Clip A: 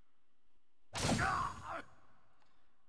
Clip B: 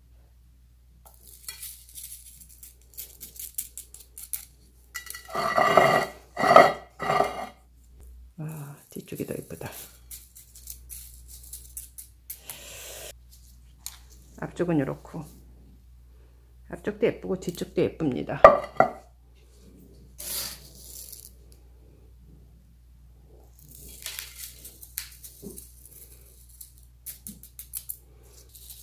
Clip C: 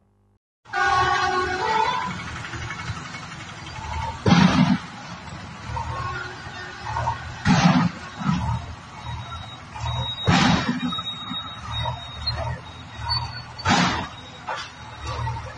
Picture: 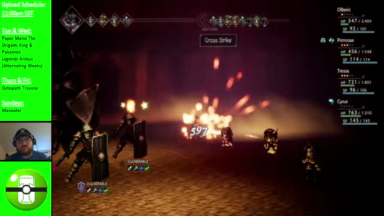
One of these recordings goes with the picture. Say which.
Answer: A